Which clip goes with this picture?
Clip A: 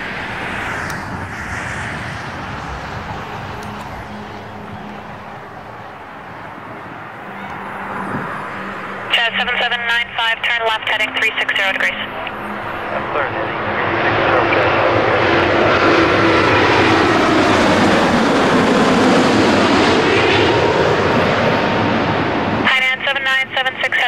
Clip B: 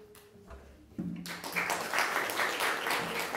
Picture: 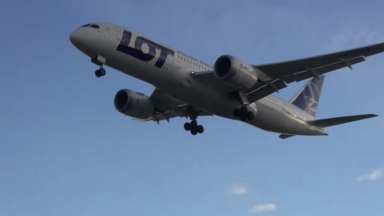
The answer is A